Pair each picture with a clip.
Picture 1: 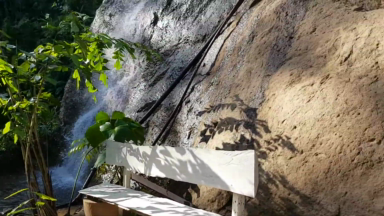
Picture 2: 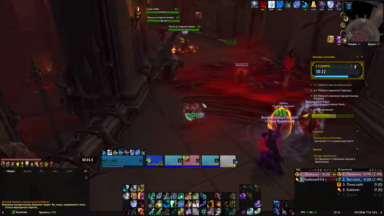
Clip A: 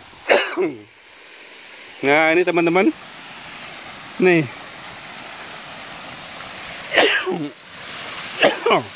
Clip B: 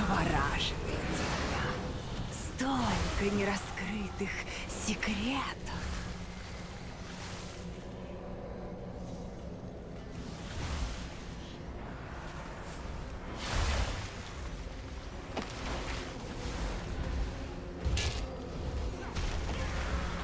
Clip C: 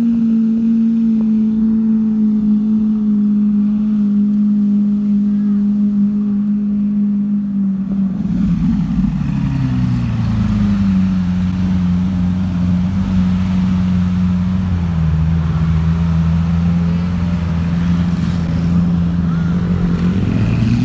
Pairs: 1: A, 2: B